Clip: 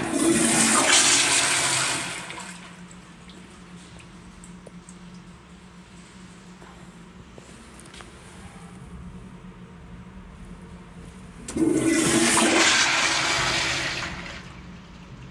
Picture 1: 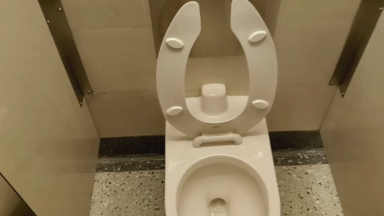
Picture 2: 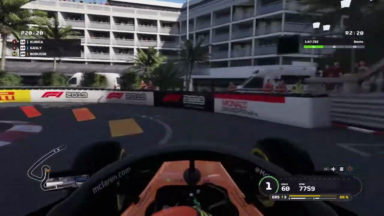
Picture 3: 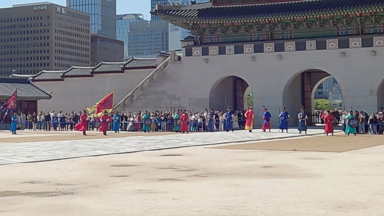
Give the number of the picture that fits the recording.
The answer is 1